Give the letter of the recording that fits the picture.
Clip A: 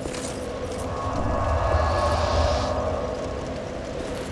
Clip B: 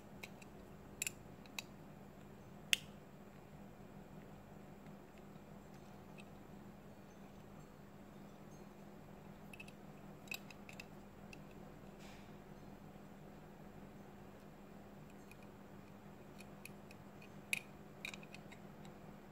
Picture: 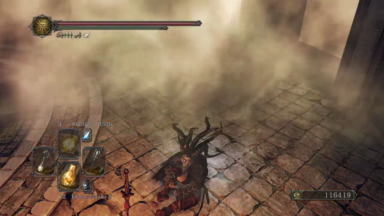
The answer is A